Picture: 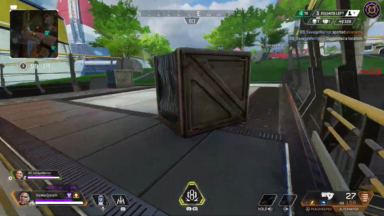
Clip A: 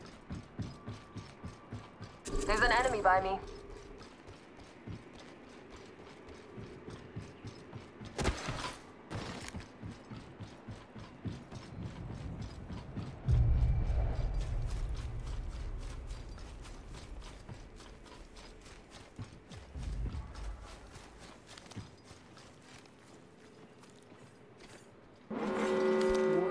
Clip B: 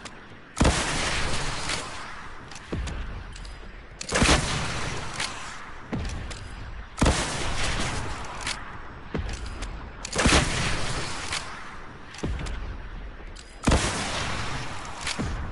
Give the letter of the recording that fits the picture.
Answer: A